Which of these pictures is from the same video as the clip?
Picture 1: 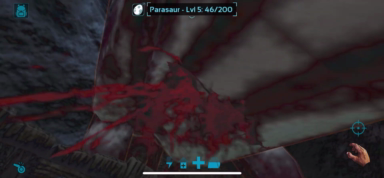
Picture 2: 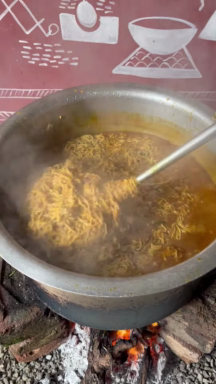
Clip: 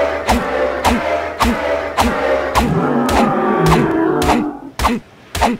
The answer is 1